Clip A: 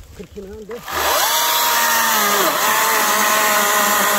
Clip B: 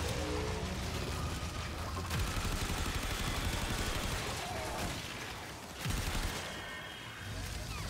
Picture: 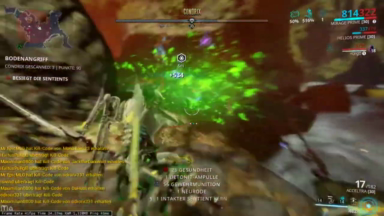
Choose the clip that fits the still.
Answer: B